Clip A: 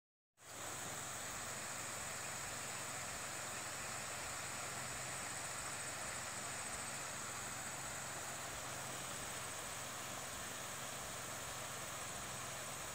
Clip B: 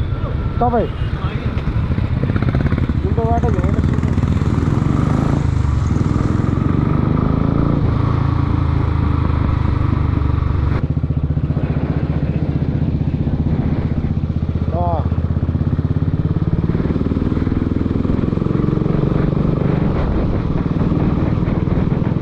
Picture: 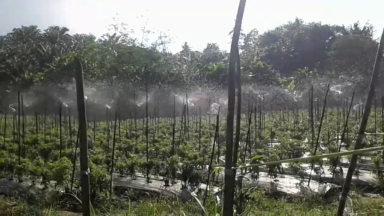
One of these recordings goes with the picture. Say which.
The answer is A